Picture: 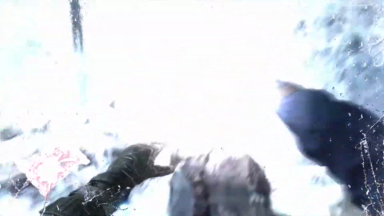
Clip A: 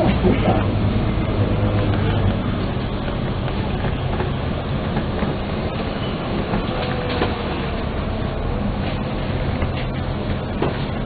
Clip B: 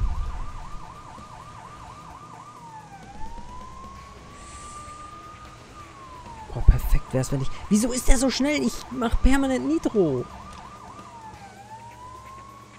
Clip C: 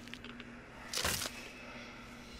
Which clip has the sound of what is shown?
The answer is C